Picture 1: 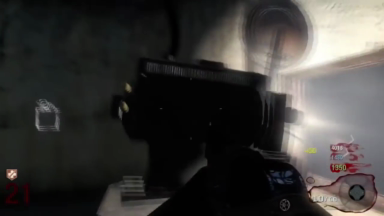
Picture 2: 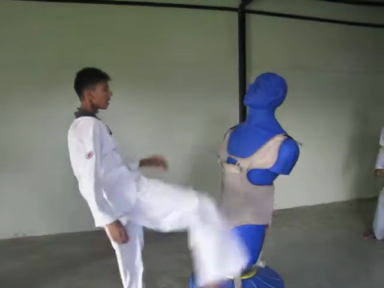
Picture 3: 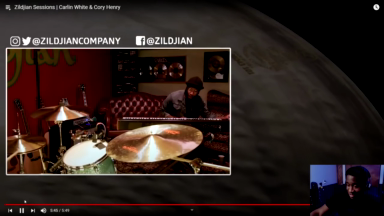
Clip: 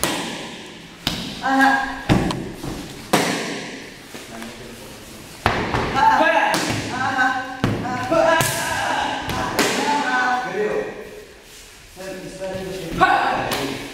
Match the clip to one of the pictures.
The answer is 2